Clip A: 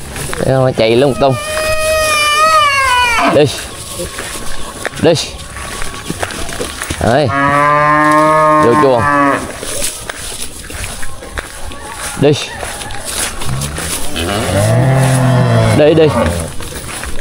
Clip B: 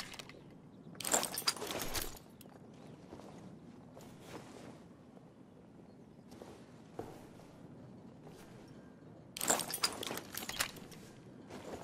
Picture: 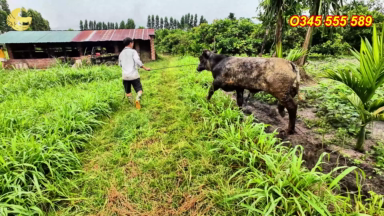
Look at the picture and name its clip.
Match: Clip A